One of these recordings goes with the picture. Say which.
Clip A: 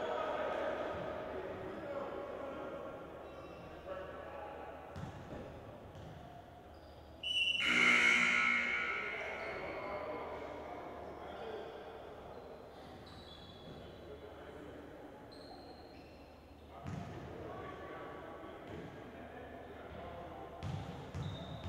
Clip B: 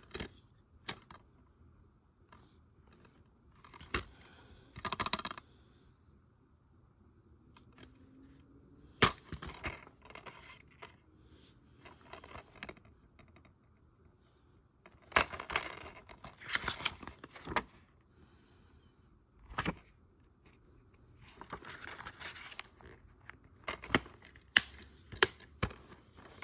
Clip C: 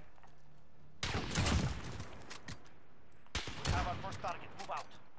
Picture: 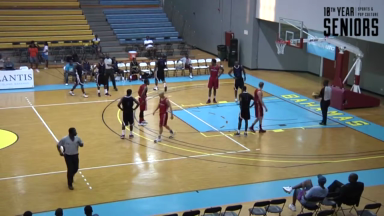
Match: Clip A